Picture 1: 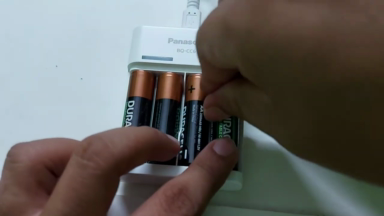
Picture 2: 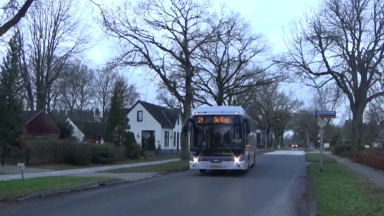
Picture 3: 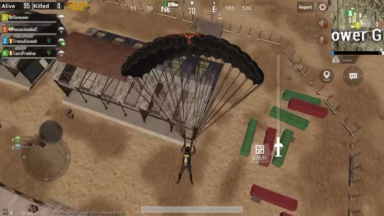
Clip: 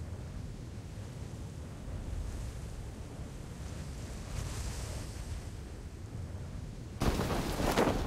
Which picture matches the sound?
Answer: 3